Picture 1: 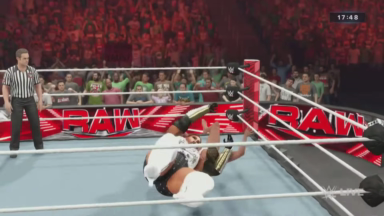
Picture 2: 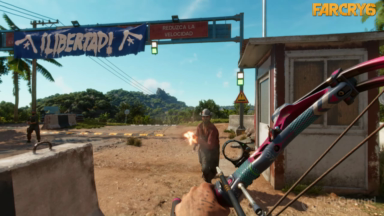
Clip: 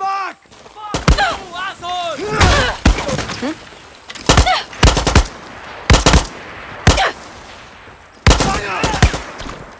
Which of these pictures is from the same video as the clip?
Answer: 2